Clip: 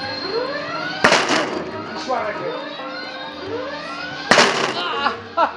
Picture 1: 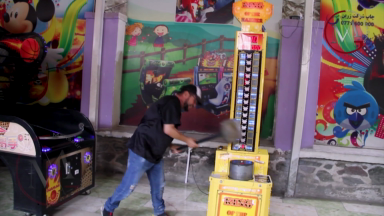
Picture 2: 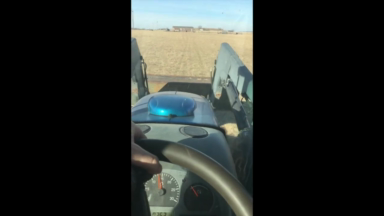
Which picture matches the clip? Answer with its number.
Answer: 1